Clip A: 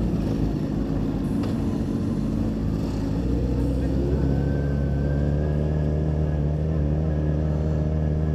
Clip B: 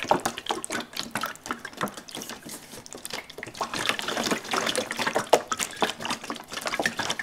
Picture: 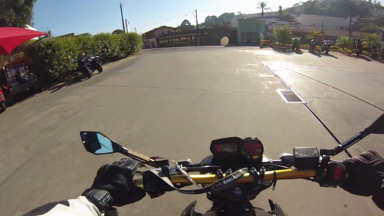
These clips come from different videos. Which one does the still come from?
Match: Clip A